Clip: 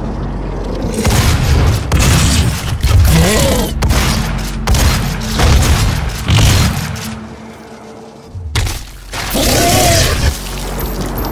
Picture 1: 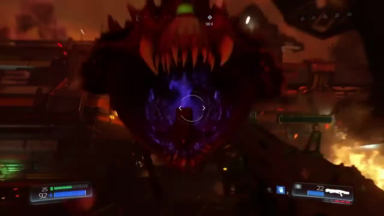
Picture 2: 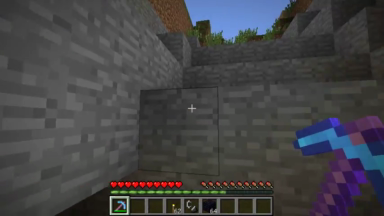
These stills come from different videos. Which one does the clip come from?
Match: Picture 1